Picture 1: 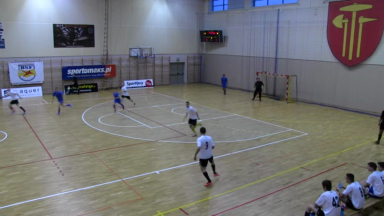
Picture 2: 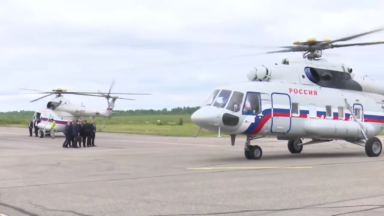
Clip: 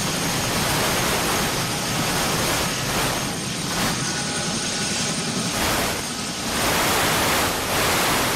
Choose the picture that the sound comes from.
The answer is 2